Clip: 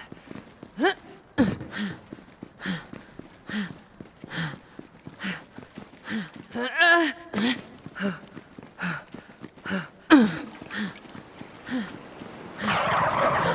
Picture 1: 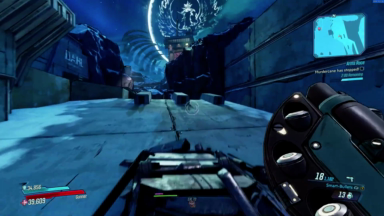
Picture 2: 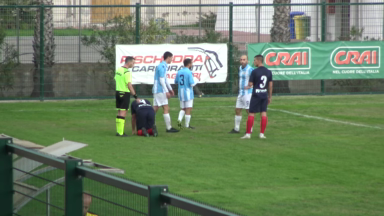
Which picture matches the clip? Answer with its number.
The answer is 1